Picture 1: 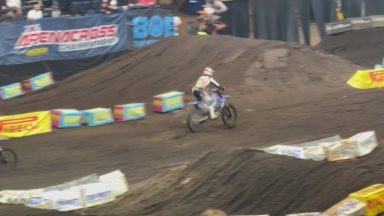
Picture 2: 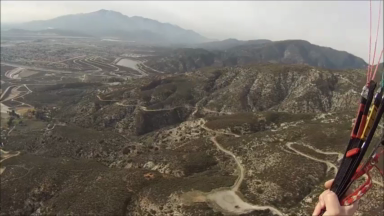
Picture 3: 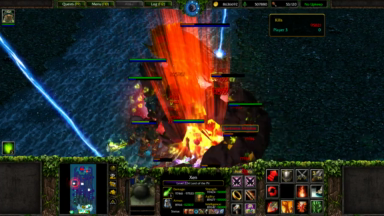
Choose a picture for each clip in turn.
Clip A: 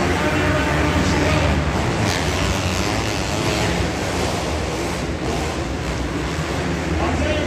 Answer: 1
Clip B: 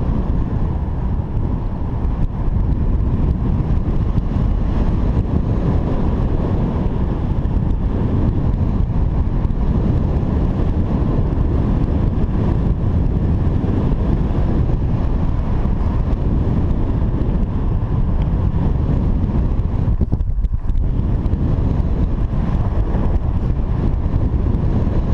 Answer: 2